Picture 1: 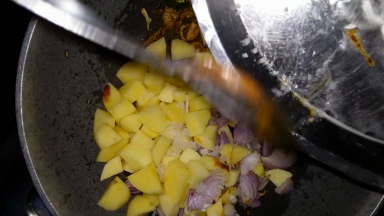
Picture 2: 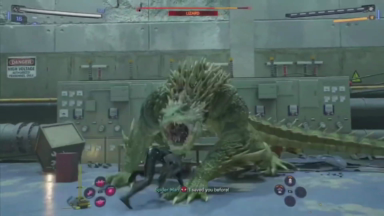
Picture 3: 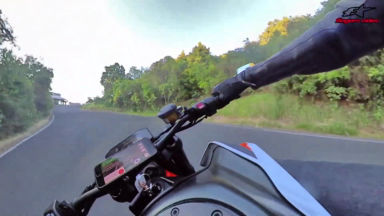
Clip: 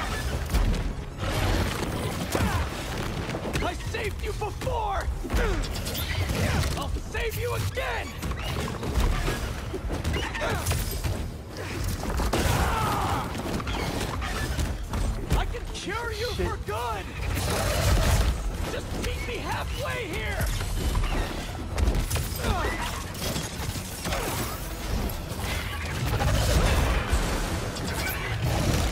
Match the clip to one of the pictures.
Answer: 2